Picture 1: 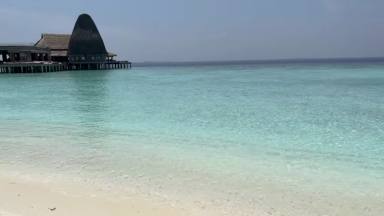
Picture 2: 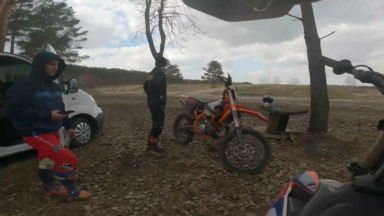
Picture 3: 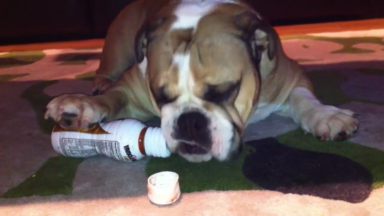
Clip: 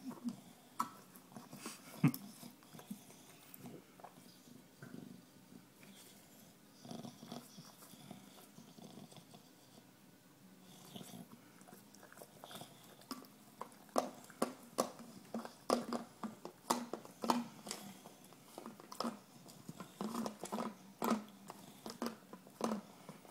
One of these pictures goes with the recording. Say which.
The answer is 3